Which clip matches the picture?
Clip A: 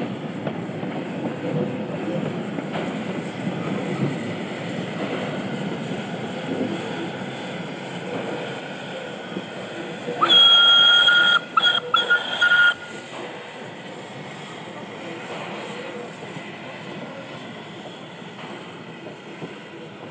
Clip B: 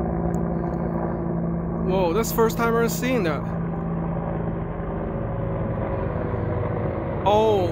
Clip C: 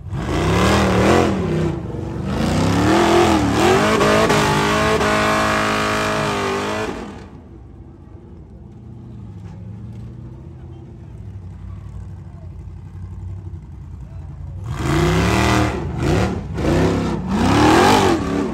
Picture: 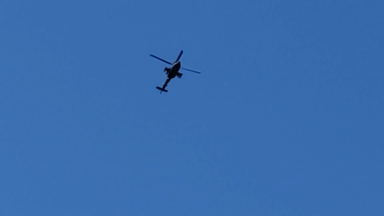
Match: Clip B